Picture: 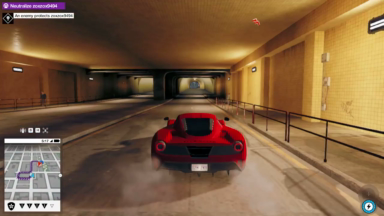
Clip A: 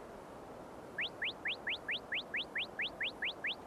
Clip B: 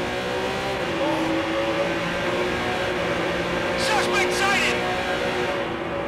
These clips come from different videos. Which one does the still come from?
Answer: B